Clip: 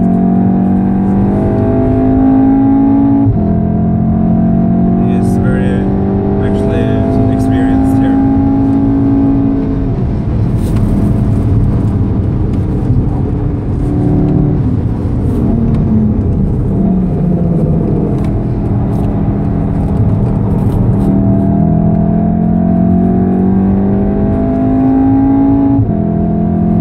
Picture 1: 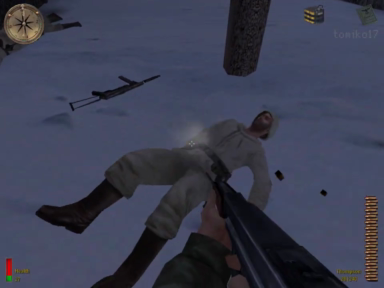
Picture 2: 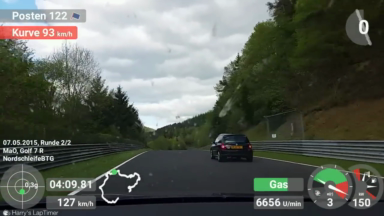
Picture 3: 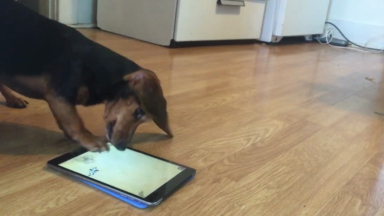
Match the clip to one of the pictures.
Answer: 2